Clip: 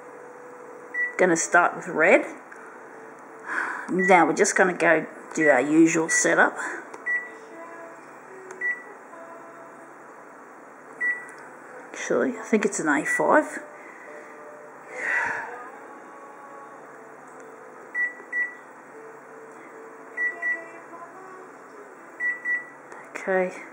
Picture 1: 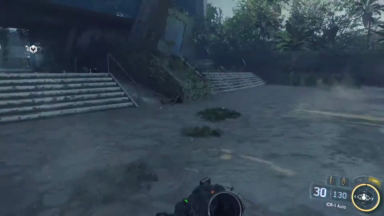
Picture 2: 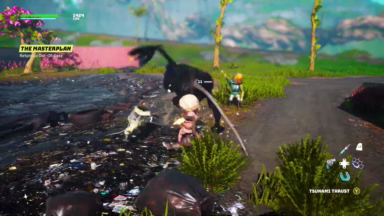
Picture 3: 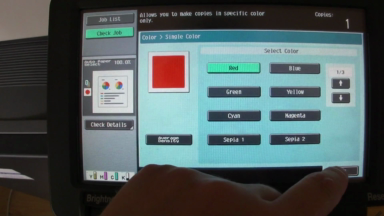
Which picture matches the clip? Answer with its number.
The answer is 3